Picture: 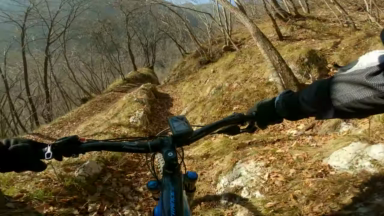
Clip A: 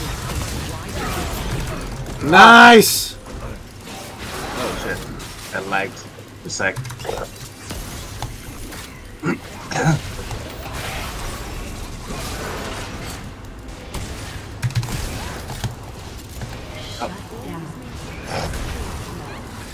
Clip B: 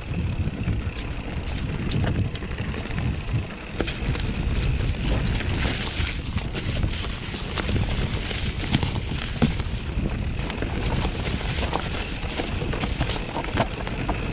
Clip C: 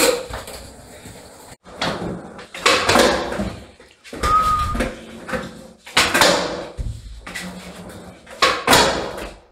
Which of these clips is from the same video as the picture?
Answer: B